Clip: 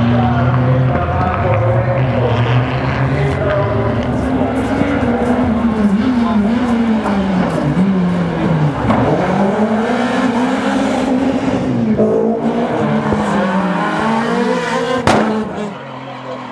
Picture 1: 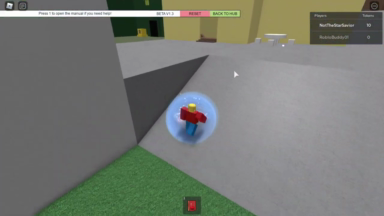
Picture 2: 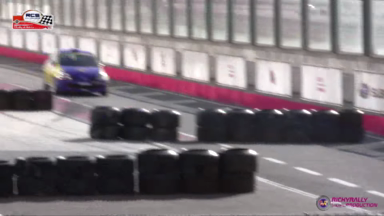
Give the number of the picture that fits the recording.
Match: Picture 2